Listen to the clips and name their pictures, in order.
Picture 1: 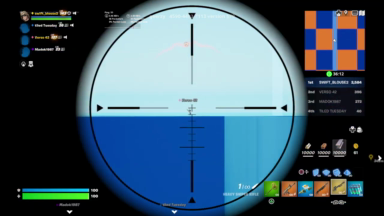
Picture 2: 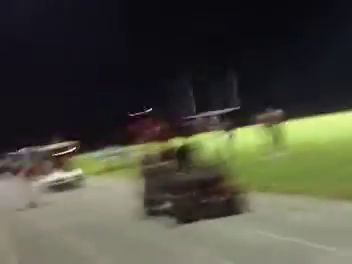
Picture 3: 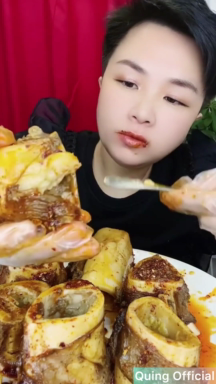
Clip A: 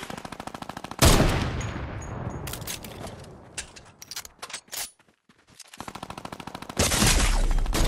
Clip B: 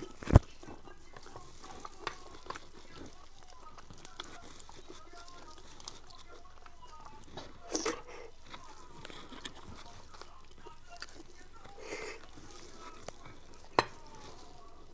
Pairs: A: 1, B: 3